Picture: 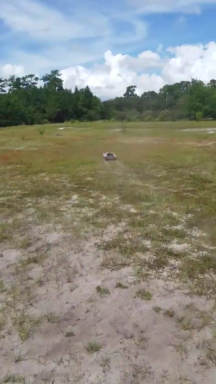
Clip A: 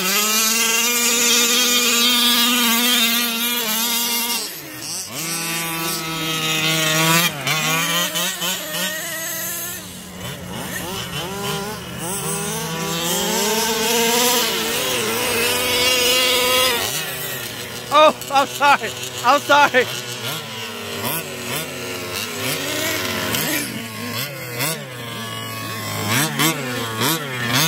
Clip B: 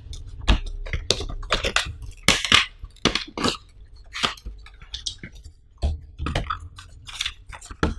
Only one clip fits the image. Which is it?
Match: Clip A